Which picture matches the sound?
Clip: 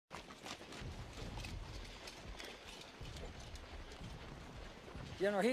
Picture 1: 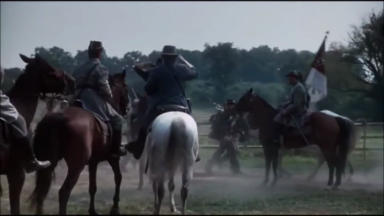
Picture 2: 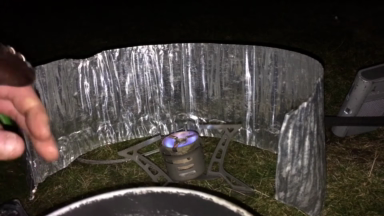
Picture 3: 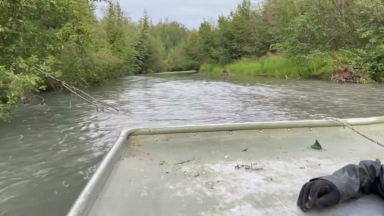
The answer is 1